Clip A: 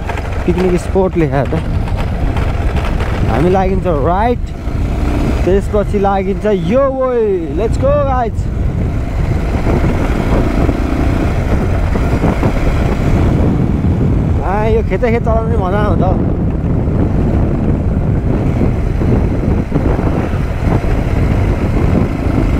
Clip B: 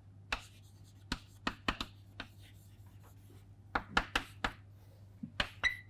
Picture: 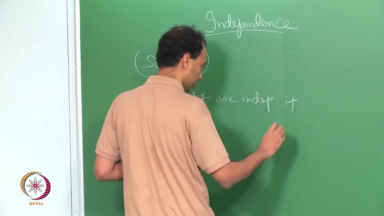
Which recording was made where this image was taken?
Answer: B